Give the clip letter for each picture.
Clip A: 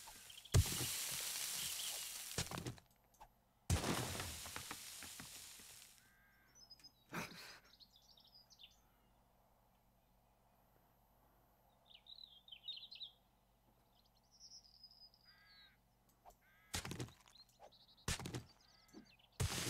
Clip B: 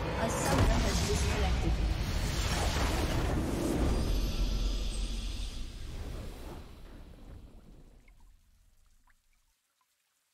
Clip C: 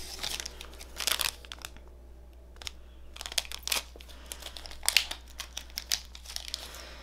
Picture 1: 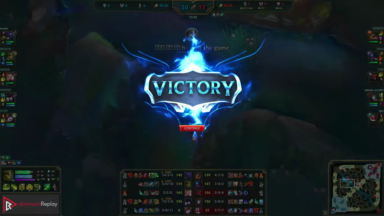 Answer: B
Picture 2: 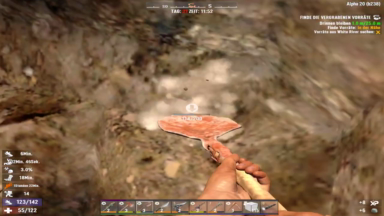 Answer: A